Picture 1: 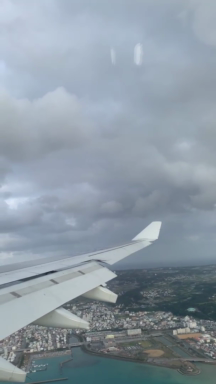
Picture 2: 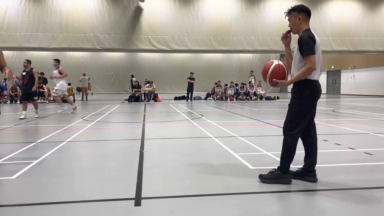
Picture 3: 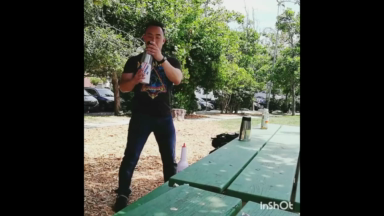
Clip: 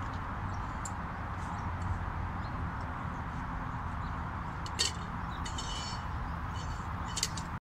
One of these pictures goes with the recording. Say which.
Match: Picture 3